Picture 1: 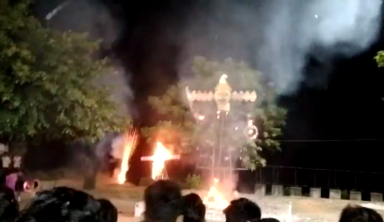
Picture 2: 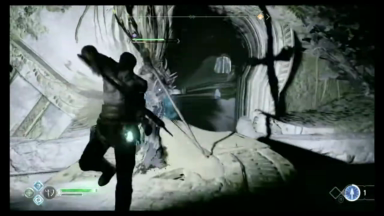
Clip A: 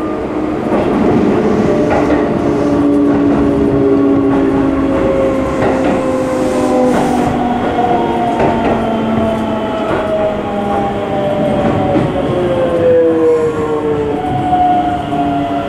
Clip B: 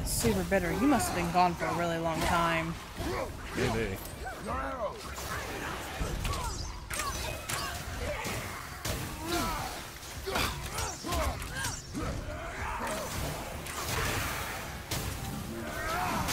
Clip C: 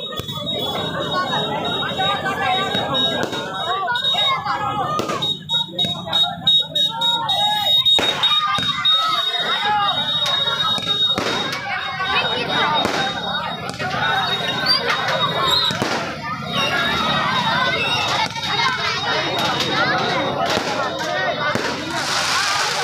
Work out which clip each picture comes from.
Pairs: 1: C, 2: B